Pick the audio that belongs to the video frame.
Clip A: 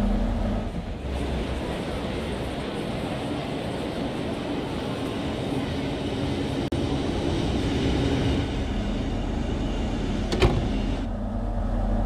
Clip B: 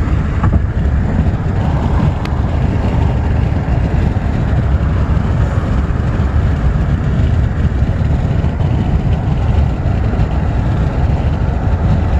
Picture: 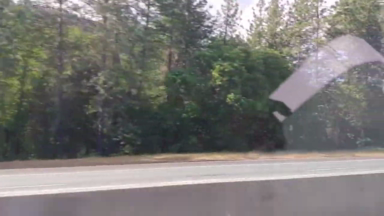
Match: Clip B